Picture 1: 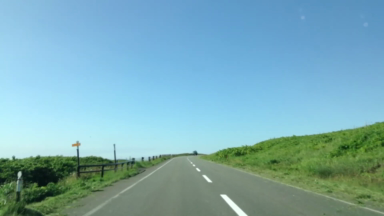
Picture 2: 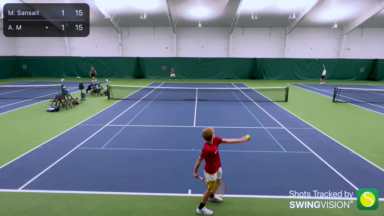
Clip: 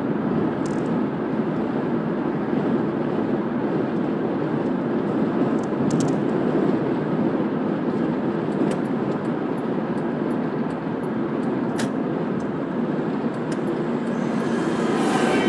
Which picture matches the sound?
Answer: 1